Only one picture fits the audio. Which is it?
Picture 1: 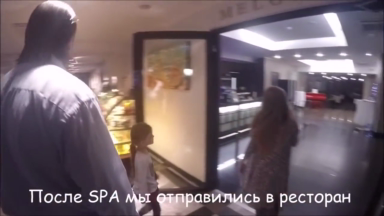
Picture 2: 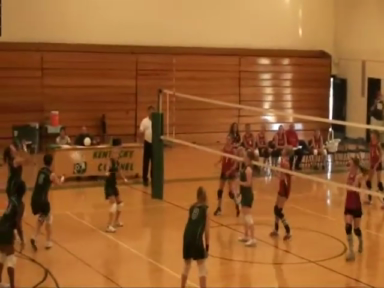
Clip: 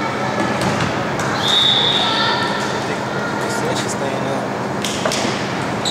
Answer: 2